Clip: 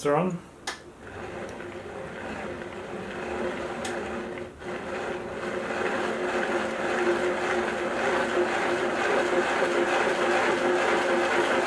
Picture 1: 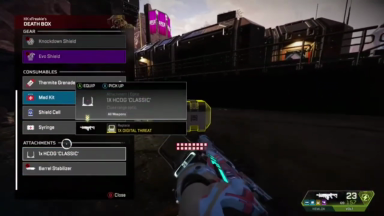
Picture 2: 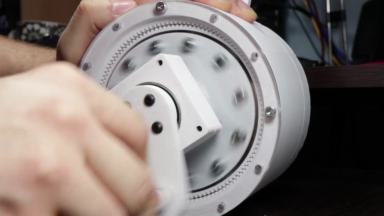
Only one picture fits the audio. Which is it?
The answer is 2